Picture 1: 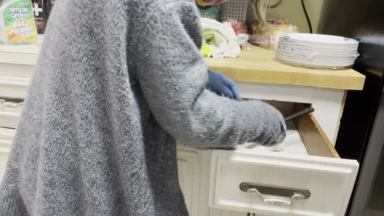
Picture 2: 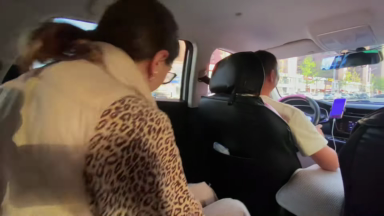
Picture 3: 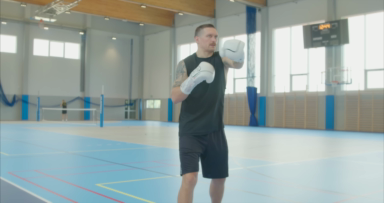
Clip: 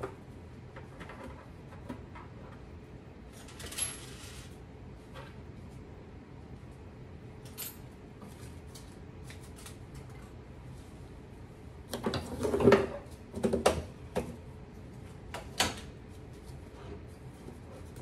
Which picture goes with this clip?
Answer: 1